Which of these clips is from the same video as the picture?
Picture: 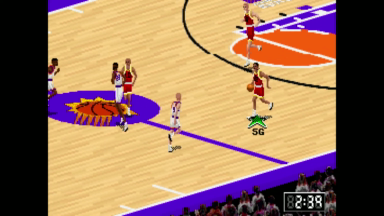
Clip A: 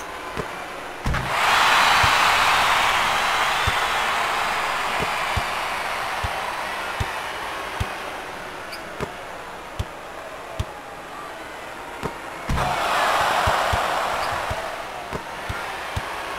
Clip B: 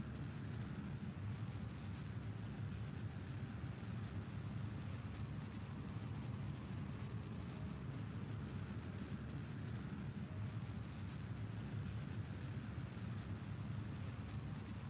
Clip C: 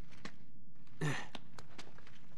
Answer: A